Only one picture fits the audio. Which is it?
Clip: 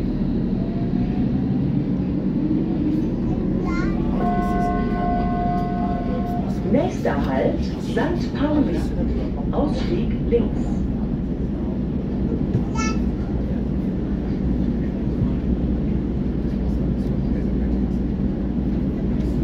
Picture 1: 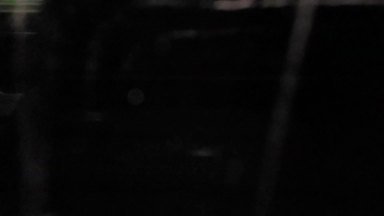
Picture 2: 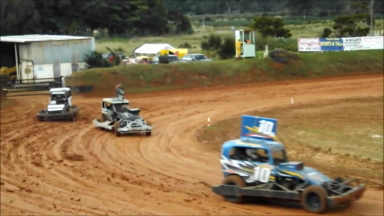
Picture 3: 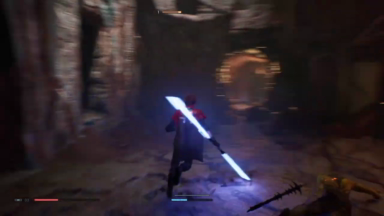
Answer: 1